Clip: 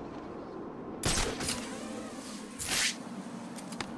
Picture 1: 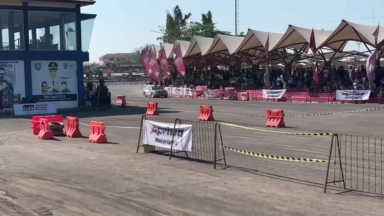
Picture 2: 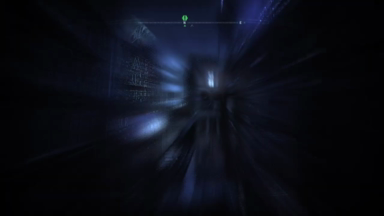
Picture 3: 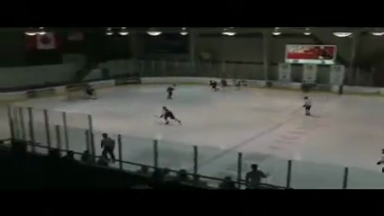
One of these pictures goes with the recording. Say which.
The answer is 2